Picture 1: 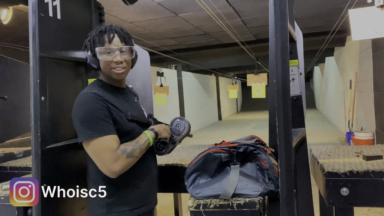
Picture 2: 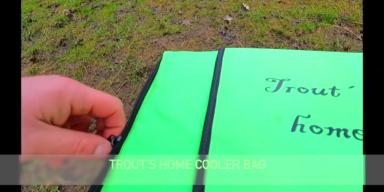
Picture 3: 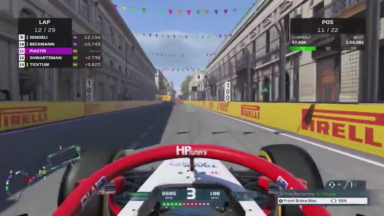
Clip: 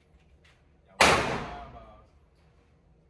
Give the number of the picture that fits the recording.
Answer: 1